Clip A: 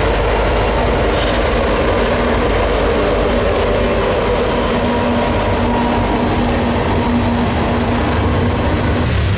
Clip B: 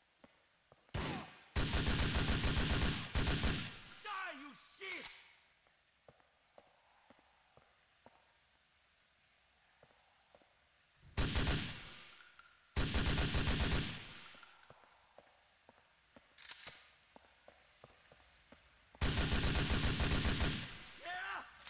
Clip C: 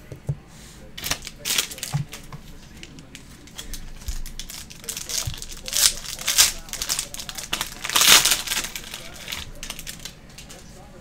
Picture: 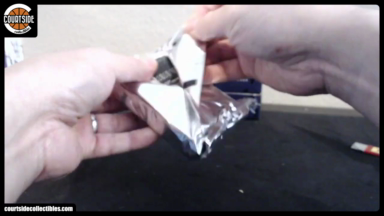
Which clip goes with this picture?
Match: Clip C